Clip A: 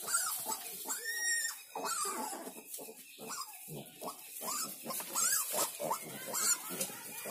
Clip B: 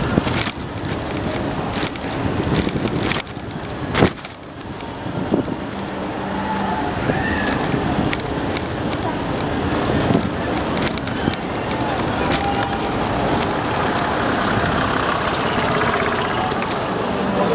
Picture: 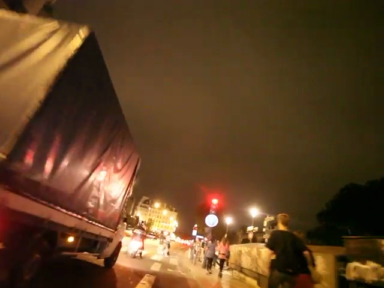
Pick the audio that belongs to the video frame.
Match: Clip B